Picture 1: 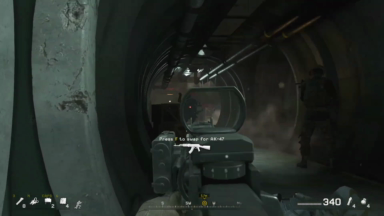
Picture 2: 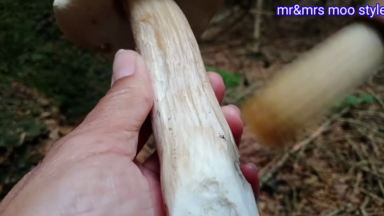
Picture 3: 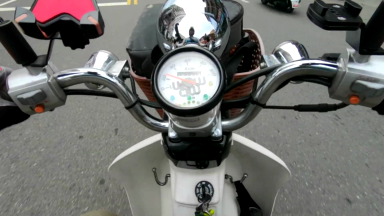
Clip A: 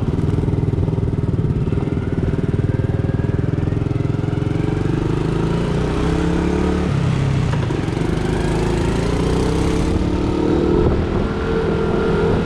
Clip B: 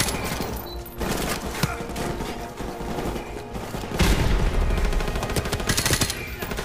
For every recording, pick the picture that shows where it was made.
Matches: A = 3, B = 1